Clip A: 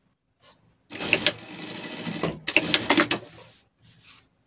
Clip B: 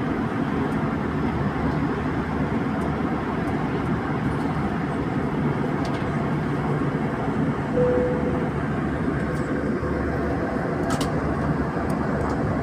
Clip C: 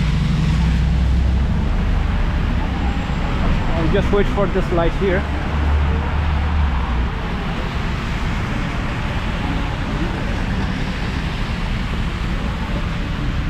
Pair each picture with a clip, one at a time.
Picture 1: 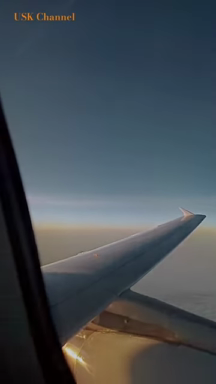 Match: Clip B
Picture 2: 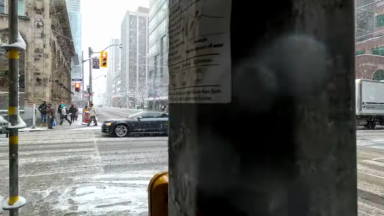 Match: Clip C